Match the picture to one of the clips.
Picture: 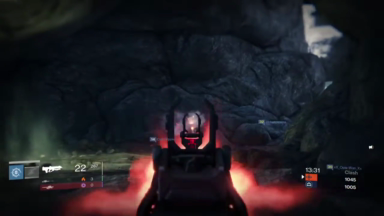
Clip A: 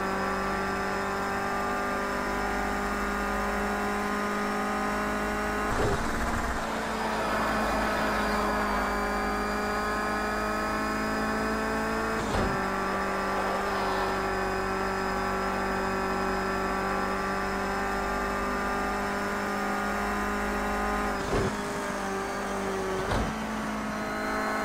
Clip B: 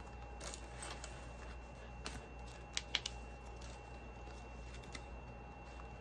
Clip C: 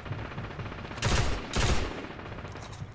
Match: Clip C